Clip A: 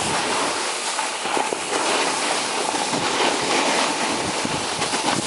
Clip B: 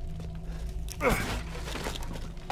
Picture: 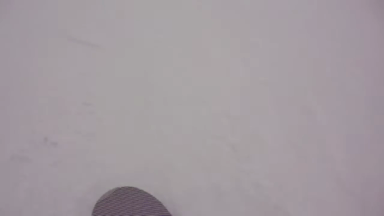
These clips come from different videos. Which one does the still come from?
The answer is A